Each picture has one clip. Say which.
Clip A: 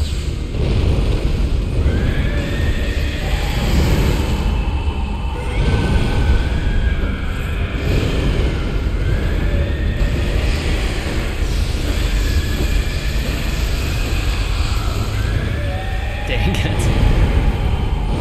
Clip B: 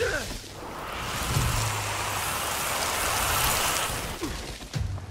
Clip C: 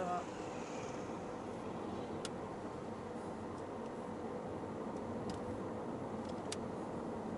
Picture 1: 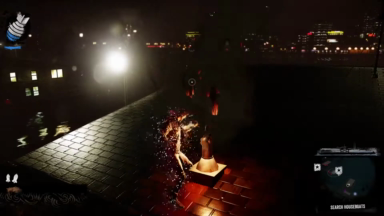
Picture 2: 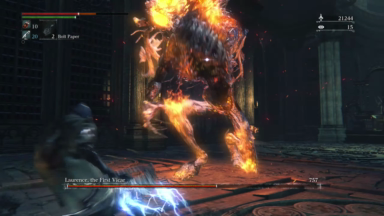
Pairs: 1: B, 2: A